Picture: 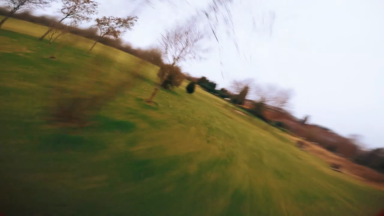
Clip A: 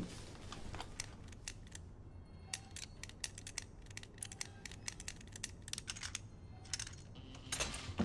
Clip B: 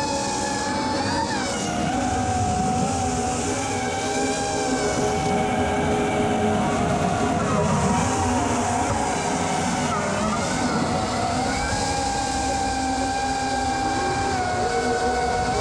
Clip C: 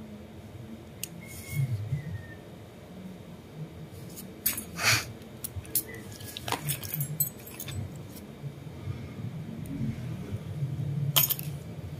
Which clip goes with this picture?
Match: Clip B